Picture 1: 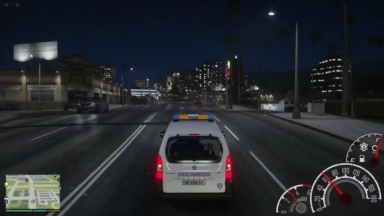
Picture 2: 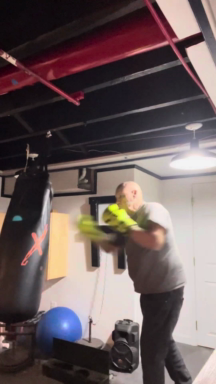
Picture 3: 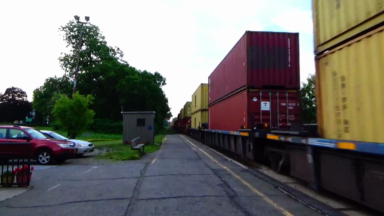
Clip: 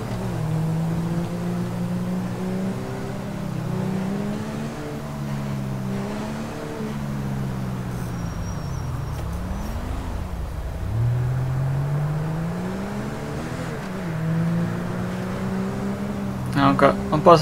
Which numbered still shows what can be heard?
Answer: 1